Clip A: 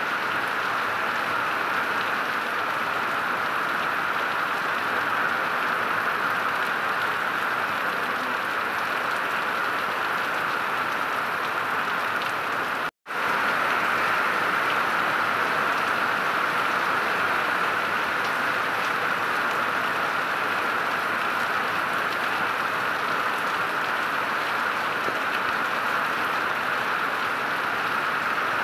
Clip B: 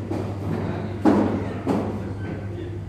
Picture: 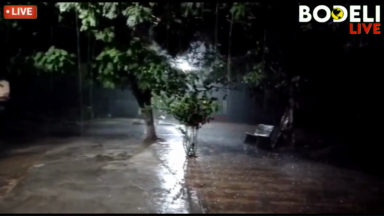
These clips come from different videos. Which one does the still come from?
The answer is A